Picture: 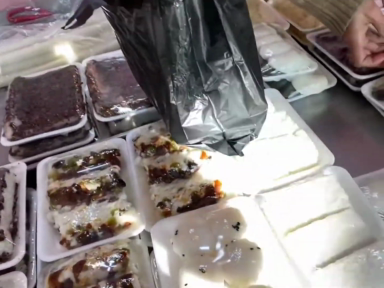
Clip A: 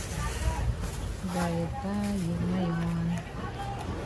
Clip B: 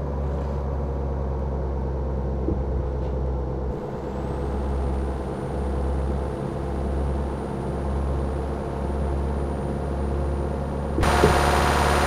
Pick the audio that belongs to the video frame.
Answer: A